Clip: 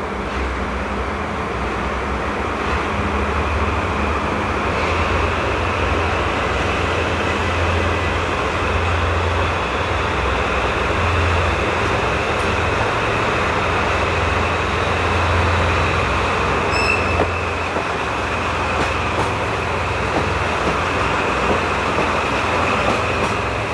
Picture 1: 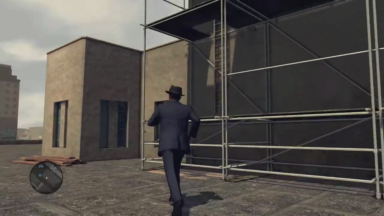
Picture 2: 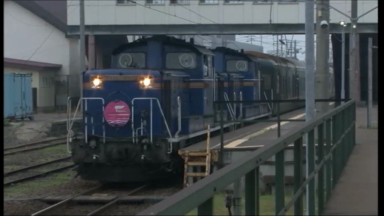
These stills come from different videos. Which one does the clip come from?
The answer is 2